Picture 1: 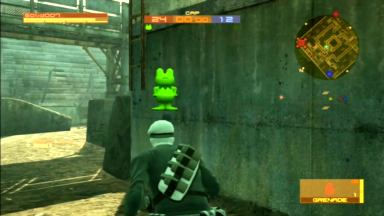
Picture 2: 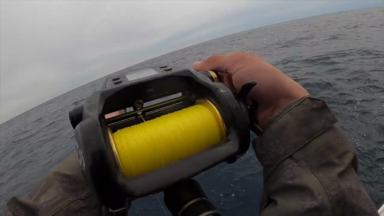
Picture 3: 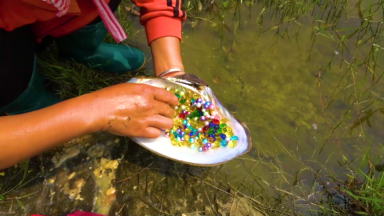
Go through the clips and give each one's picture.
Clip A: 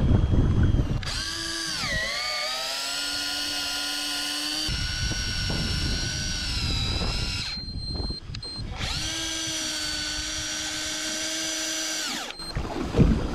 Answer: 2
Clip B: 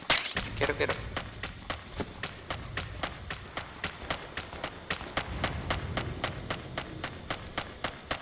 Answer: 1